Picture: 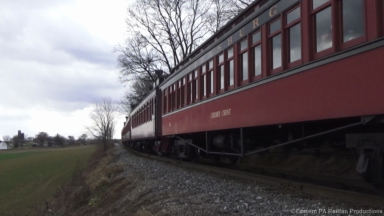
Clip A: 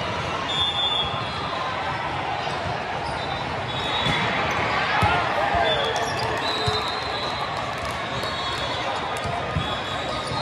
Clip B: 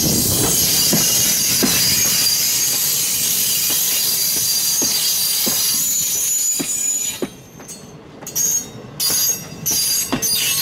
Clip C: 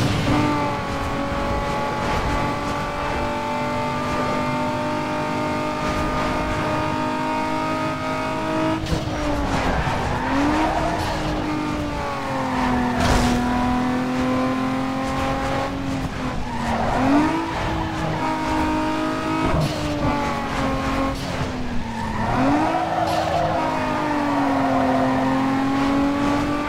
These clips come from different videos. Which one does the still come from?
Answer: B